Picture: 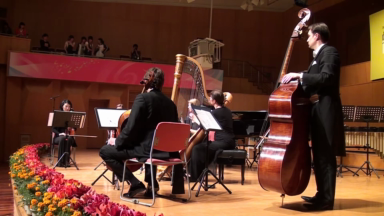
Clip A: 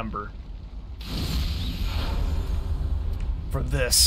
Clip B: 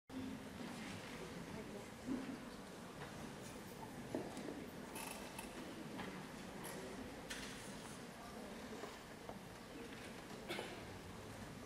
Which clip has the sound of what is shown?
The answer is B